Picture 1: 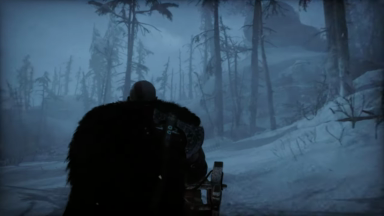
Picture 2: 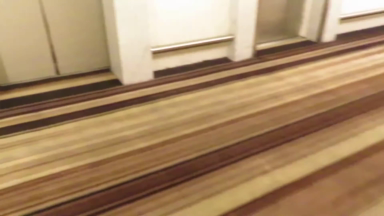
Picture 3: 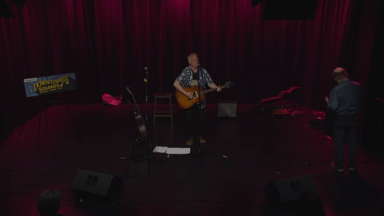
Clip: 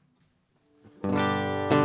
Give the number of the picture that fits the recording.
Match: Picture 3